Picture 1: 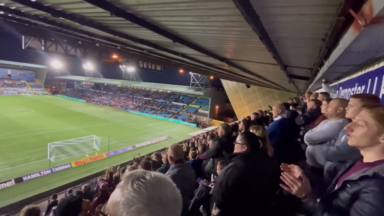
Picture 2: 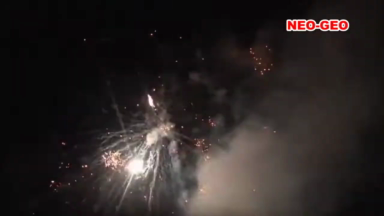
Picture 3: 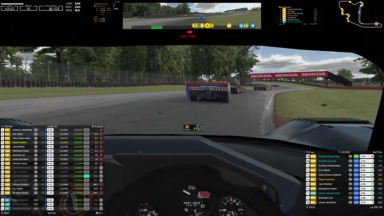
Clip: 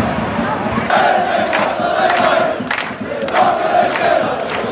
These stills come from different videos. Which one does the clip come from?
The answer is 1